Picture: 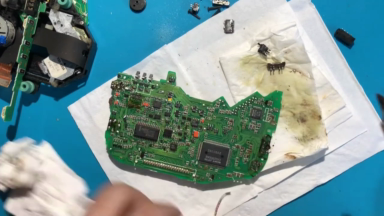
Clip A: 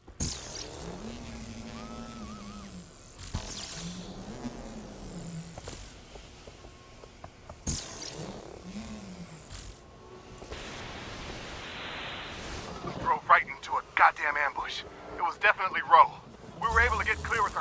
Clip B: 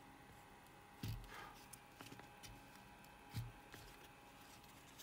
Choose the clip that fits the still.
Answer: B